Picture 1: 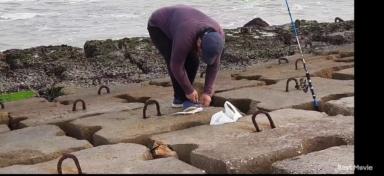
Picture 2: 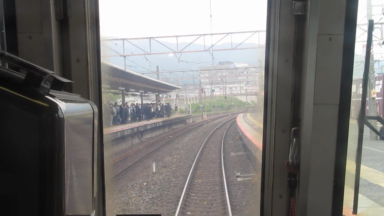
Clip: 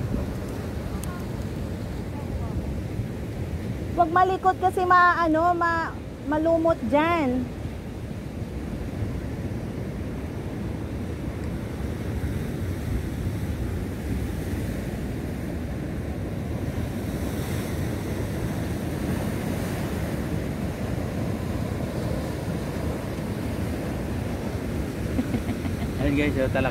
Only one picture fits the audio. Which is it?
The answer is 1